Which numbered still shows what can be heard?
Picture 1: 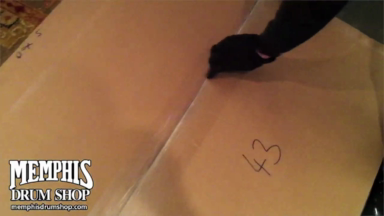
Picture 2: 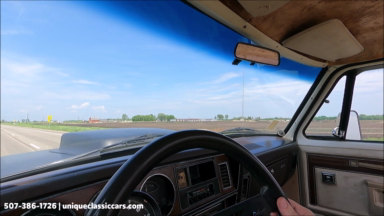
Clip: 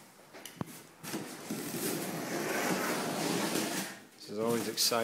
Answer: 1